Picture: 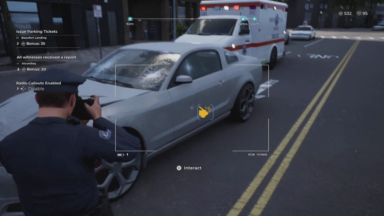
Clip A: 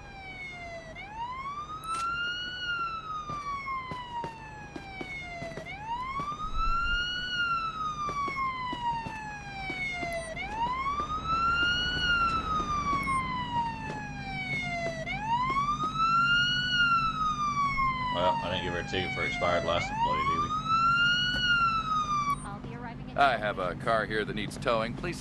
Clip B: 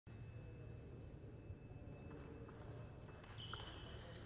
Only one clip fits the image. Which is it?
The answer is A